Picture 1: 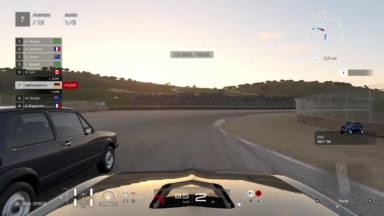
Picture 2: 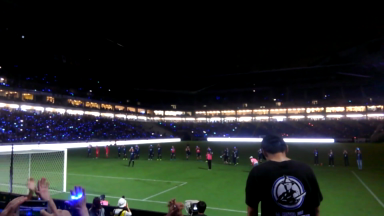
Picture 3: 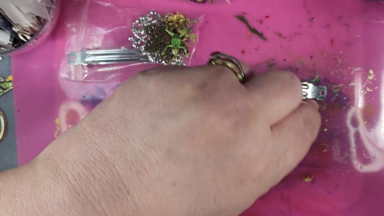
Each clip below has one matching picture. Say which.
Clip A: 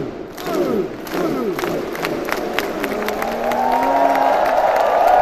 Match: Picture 2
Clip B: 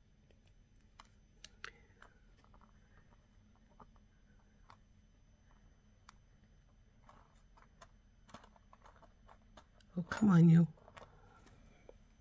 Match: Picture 3